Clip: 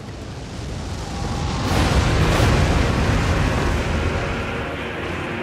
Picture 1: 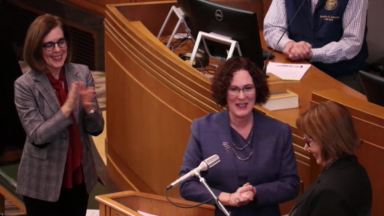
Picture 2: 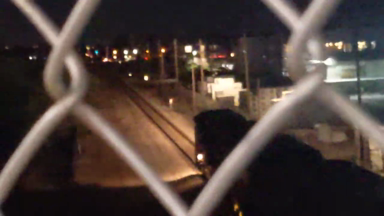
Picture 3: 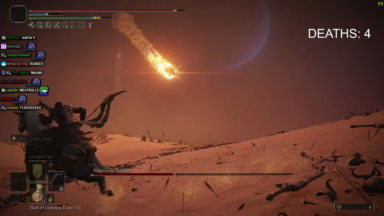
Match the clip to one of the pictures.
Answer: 3